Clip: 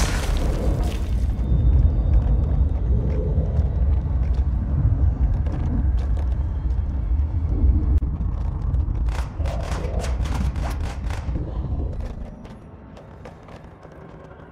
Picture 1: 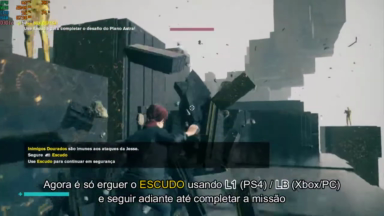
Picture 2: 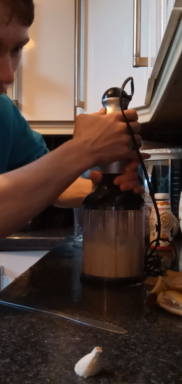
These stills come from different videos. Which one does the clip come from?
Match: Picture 1